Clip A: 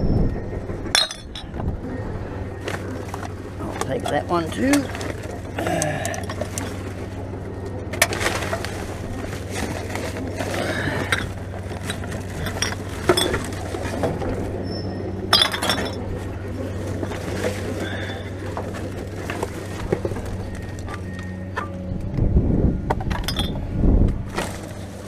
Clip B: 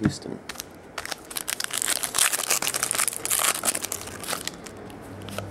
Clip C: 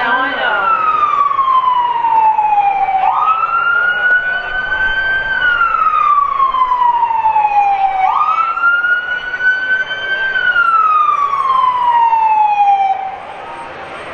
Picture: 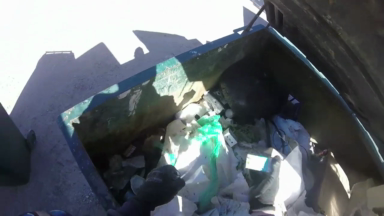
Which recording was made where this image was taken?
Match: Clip A